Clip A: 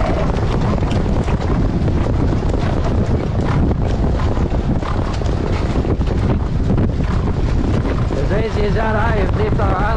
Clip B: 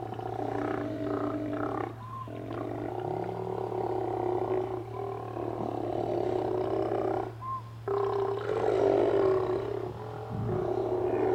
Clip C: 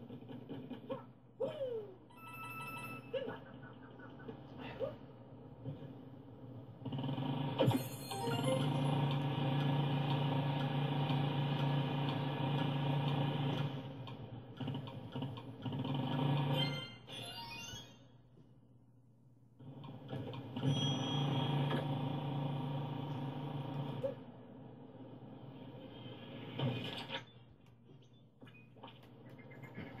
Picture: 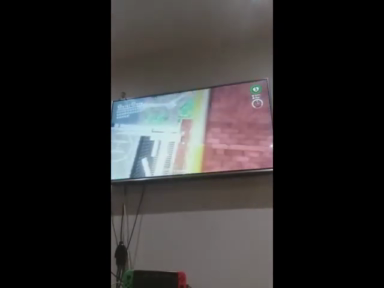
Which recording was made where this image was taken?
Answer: C